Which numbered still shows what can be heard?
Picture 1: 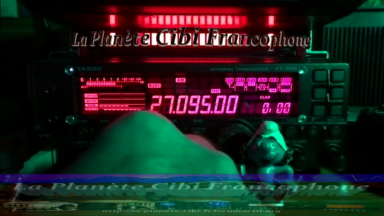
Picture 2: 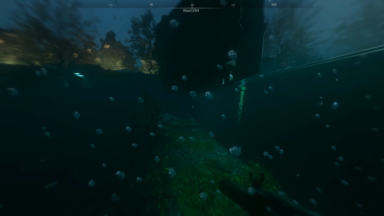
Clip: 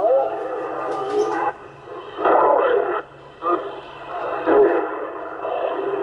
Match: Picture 1